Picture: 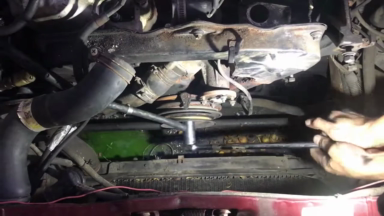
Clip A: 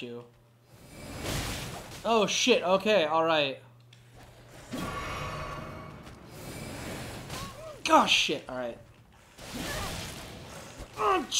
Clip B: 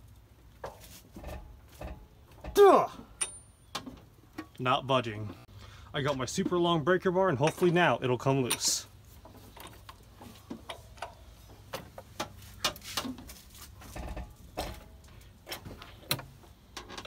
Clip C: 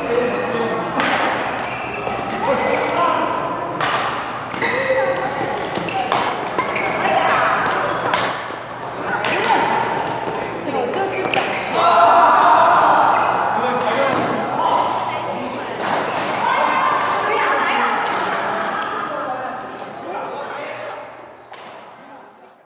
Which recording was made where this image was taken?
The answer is B